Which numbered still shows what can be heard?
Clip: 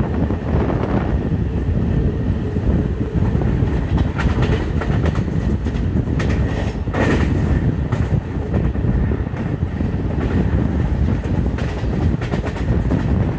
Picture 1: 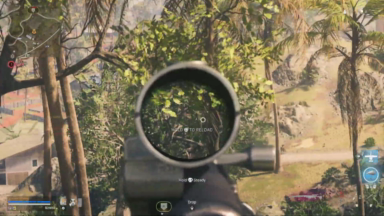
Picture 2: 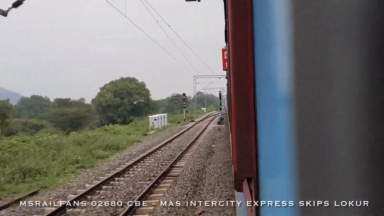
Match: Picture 2